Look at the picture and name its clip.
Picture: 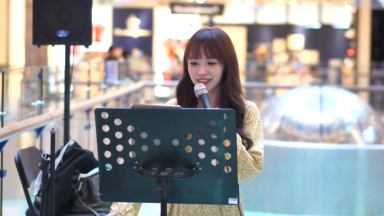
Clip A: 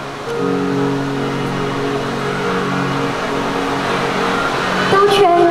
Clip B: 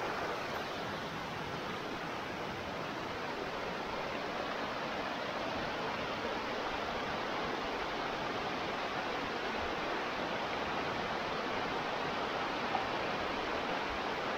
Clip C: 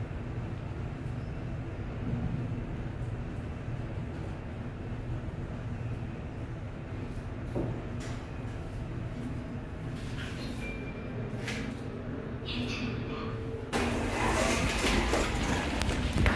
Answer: A